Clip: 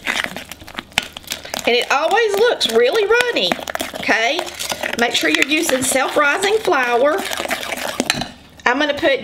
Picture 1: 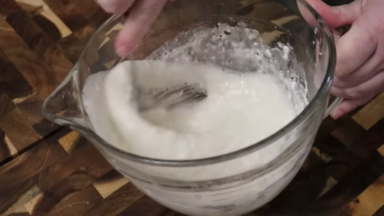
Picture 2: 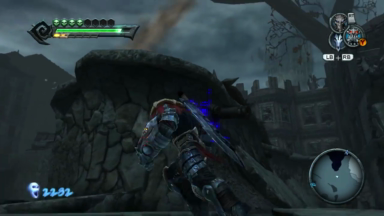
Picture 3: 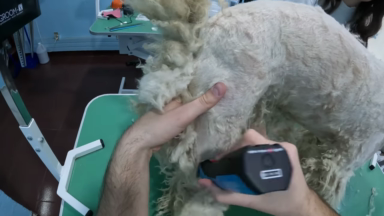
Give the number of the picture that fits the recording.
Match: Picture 1